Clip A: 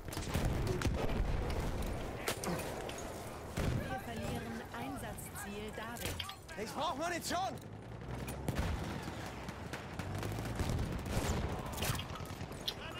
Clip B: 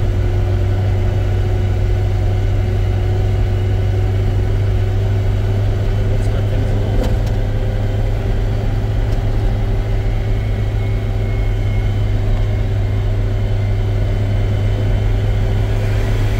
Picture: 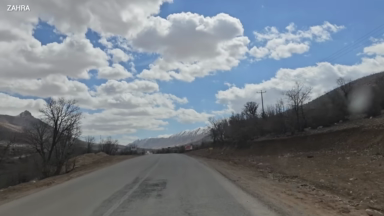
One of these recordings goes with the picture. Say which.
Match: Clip B